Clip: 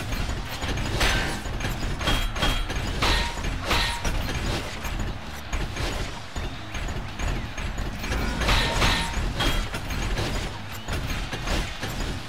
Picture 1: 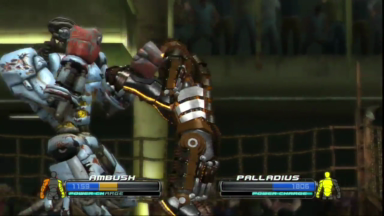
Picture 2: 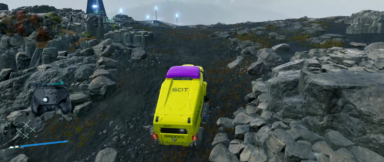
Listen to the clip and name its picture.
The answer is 1